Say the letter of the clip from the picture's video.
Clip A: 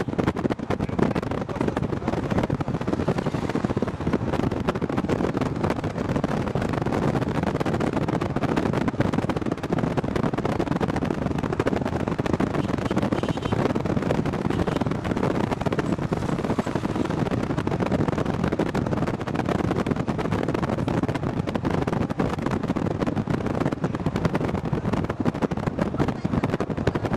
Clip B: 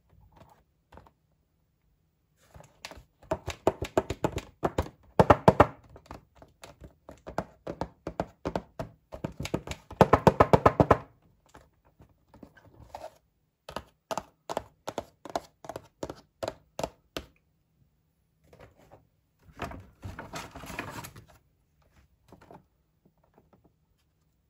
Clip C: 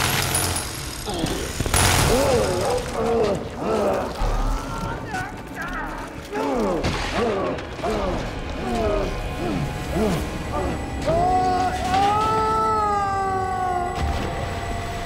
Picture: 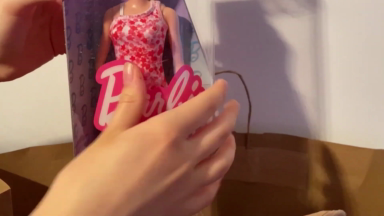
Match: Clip B